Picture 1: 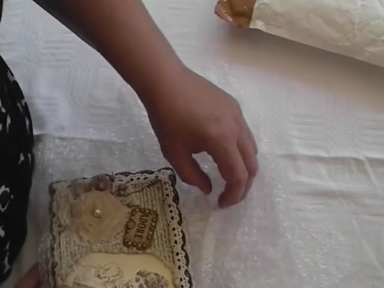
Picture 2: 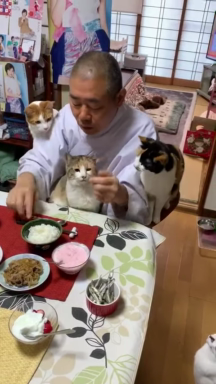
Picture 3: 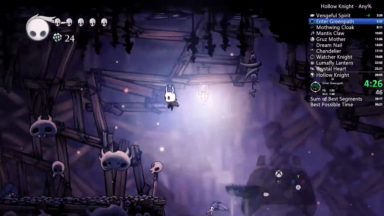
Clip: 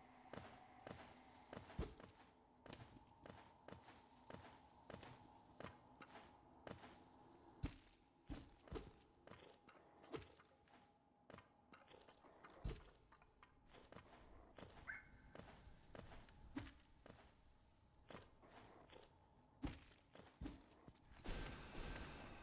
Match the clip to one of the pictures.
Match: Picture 3